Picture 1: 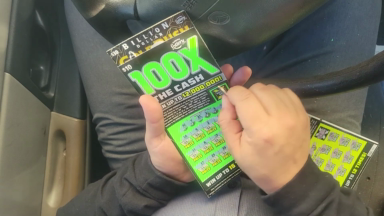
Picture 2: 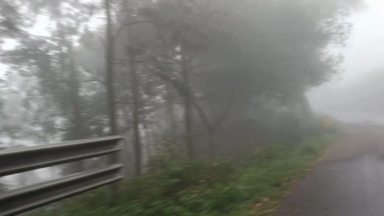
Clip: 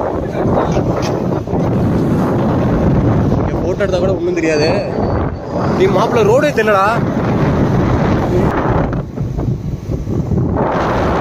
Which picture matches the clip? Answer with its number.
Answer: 2